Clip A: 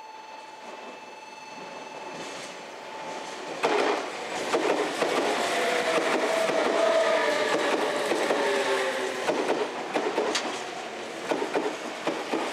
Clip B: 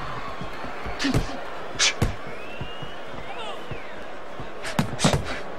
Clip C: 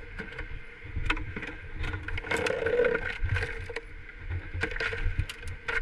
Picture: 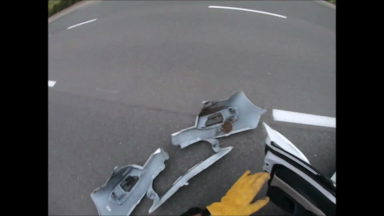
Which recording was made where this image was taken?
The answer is C